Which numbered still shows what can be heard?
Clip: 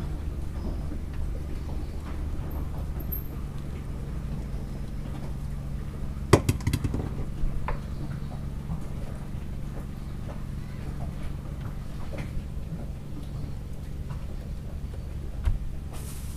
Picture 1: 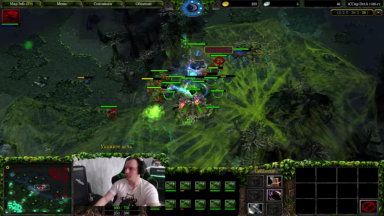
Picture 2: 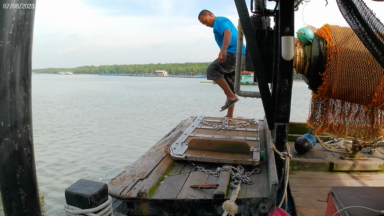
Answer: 2